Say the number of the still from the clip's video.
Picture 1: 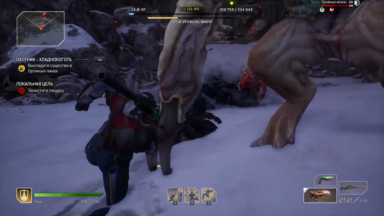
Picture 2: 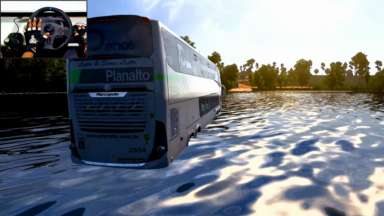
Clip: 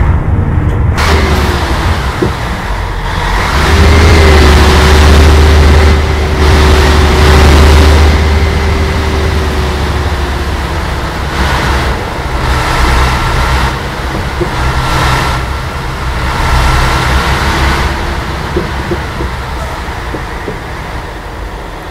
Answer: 2